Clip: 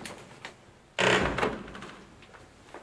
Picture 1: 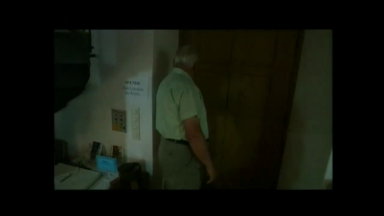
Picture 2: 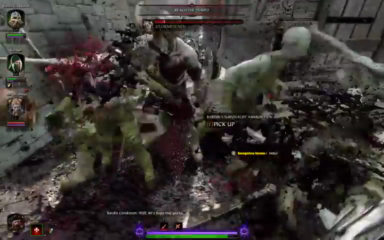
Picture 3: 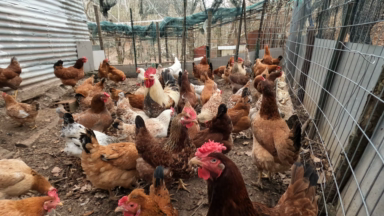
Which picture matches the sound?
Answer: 1